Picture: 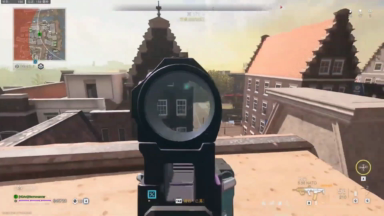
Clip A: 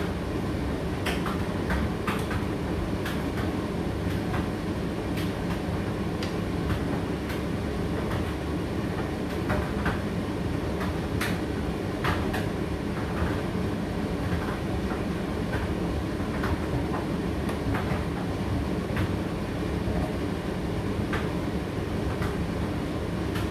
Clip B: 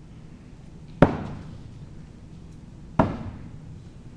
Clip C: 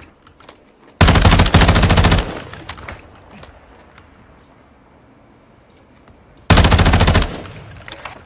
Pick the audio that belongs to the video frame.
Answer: C